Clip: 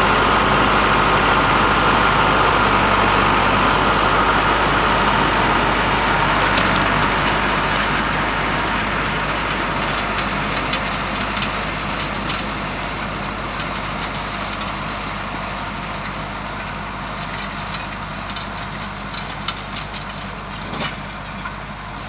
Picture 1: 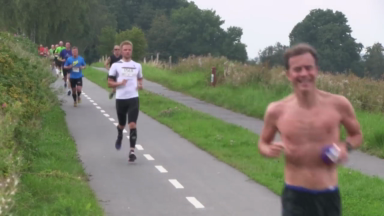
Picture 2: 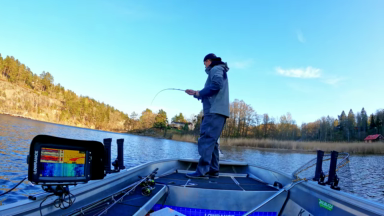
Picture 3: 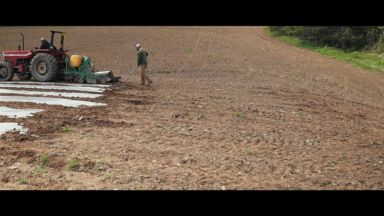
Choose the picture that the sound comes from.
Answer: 3